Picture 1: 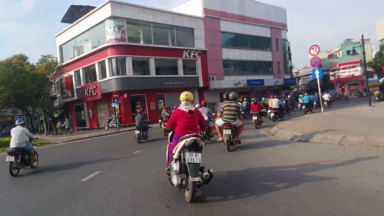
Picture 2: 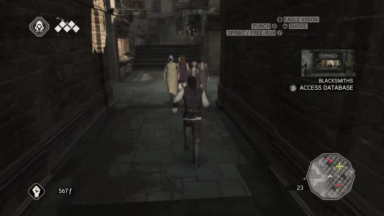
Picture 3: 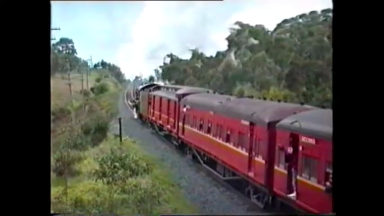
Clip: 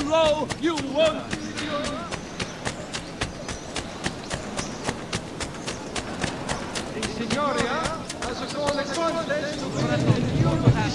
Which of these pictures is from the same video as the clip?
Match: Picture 2